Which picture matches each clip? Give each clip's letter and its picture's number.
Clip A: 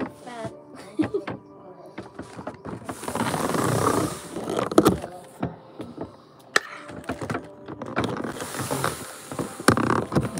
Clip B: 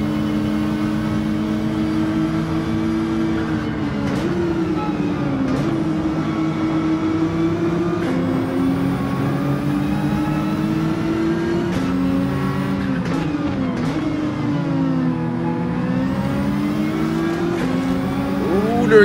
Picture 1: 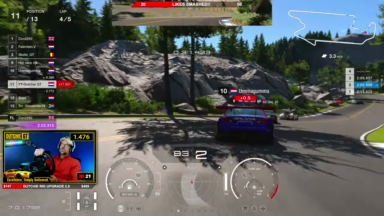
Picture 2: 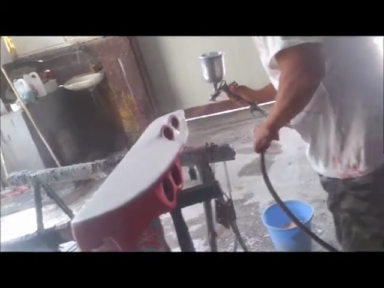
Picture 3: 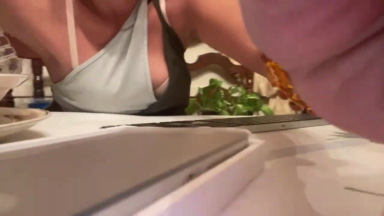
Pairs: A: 3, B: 1